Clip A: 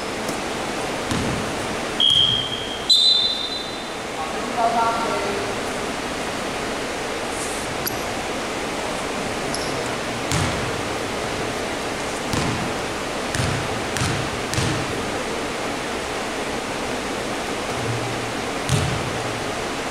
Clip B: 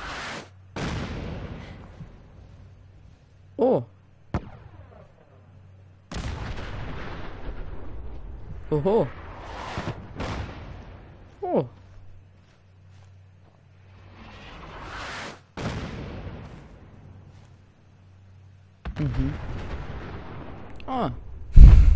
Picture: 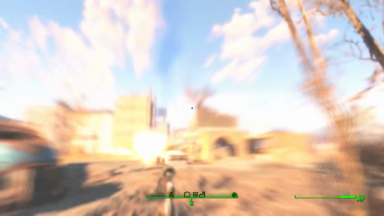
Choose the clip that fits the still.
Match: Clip B